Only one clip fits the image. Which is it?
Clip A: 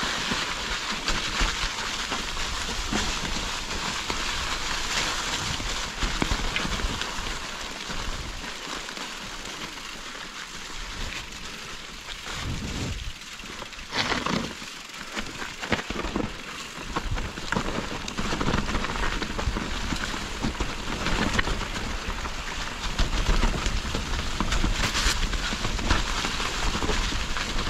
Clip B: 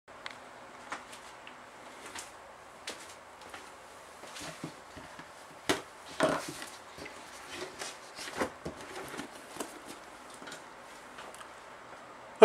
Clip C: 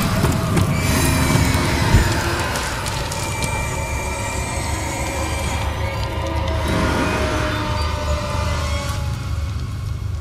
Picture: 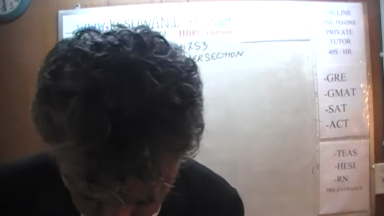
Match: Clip B